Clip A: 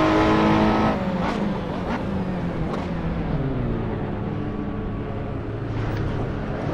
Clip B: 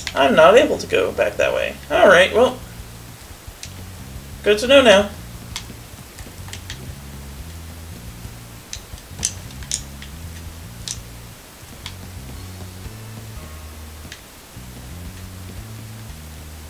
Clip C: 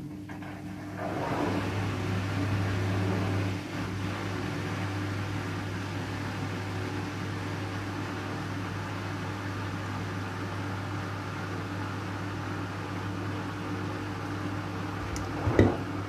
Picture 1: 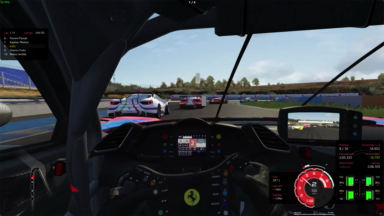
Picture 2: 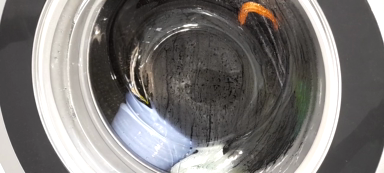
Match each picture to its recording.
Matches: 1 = A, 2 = C